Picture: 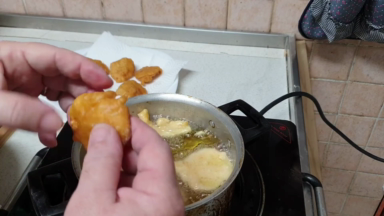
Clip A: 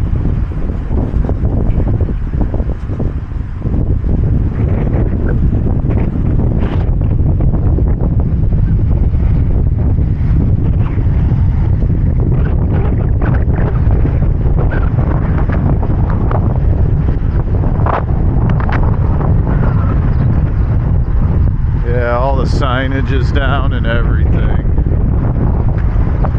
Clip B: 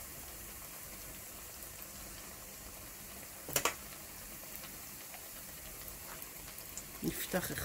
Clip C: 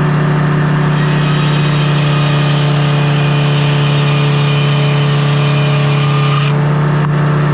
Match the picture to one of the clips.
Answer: B